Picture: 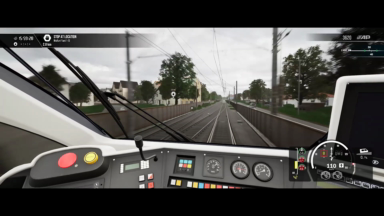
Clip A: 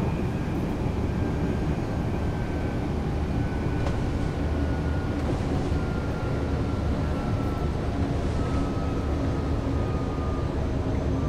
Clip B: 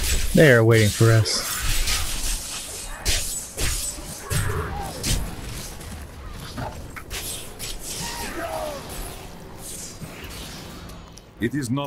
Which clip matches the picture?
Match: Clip A